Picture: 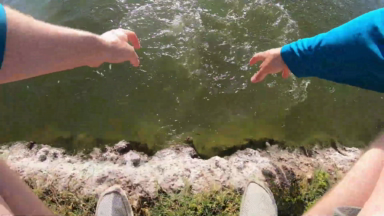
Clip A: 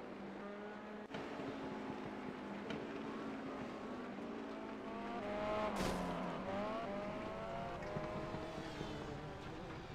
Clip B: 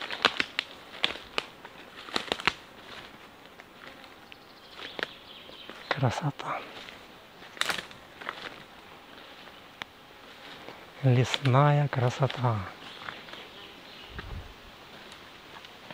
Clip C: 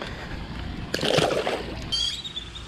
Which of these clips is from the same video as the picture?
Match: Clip C